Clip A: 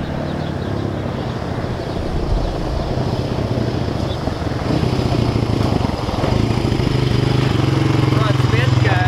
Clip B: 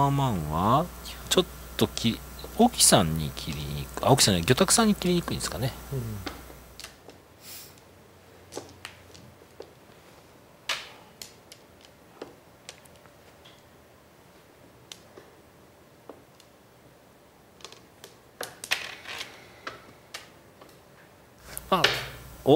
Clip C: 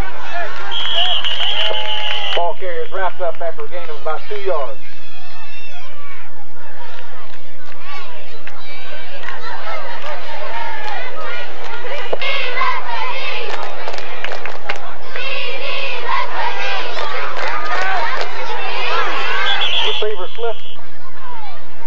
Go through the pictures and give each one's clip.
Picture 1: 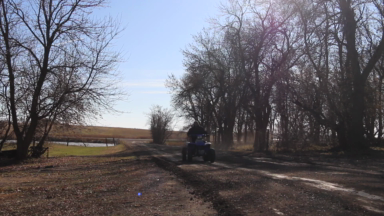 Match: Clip A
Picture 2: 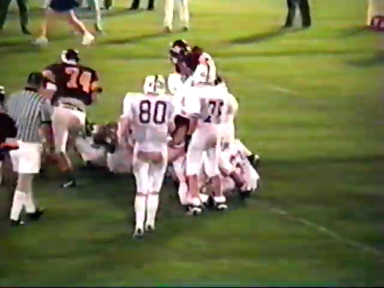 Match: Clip C